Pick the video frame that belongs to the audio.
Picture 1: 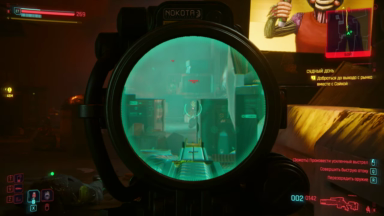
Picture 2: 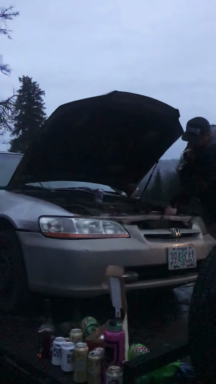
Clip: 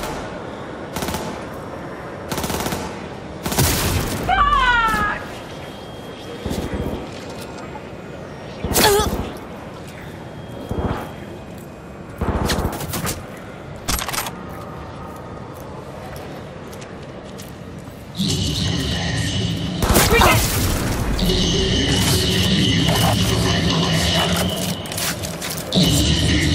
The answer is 1